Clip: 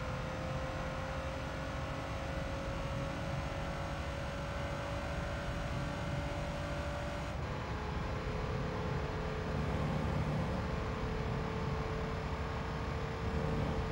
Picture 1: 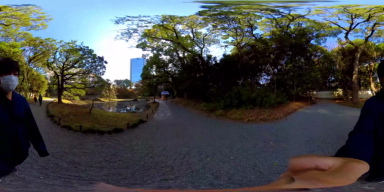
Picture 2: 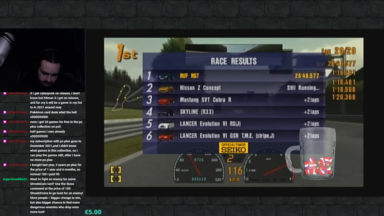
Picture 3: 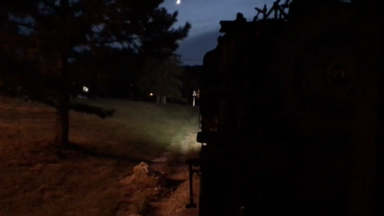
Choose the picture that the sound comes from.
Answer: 2